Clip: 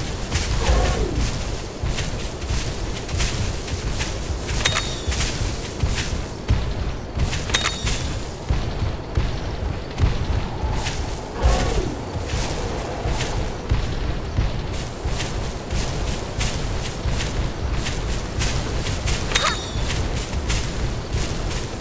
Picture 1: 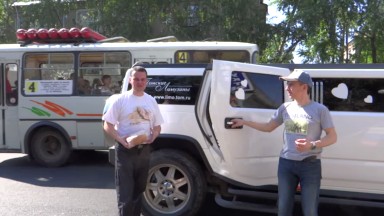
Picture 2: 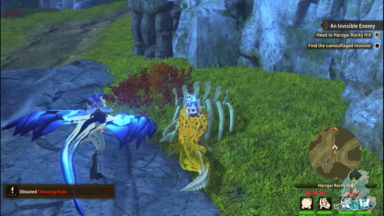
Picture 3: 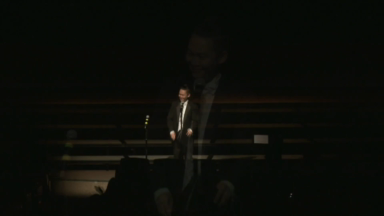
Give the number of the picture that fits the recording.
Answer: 2